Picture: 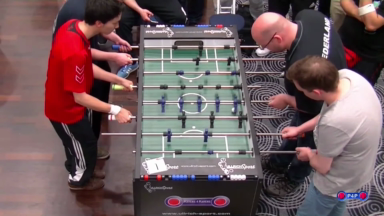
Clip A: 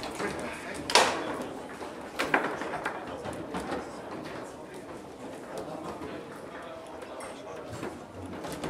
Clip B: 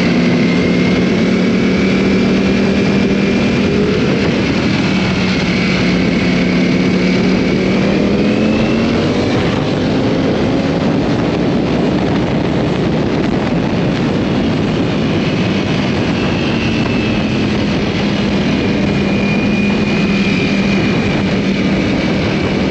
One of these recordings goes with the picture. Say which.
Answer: A